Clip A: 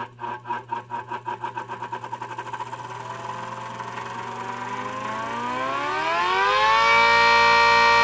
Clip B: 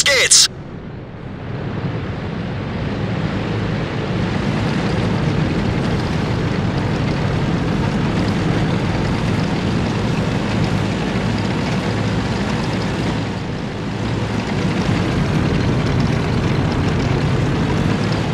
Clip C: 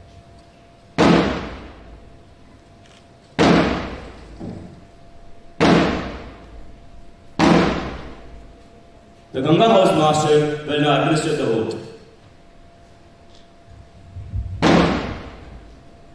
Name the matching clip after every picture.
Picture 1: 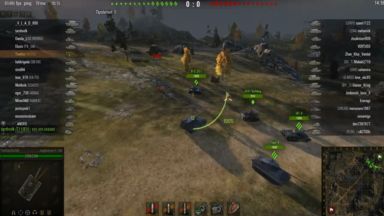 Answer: B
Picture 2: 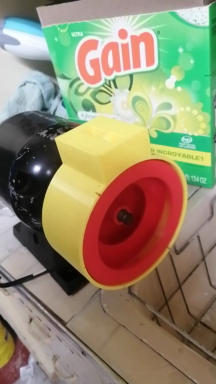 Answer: A